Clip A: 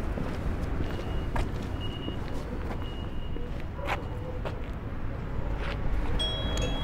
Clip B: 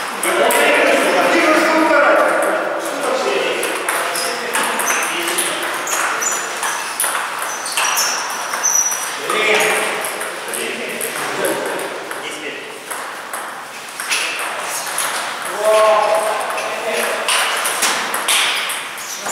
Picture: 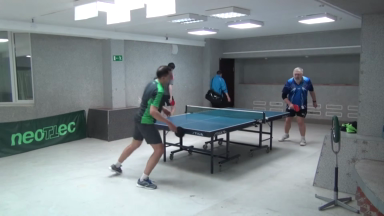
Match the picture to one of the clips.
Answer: B